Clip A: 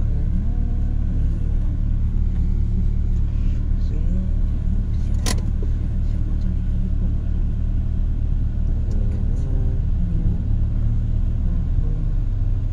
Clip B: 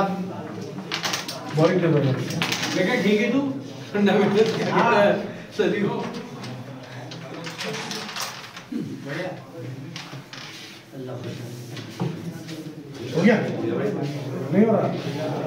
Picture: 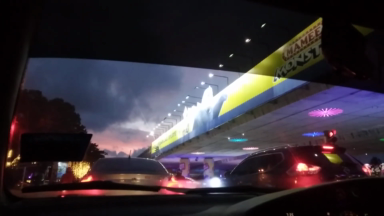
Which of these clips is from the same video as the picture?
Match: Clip A